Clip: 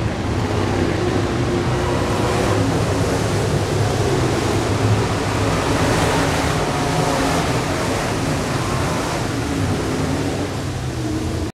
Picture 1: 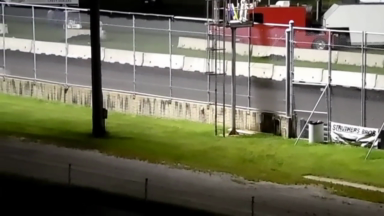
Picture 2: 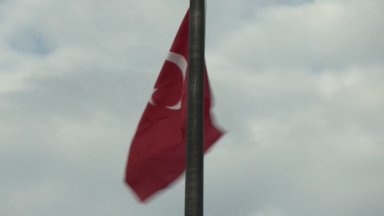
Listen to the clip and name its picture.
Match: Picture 1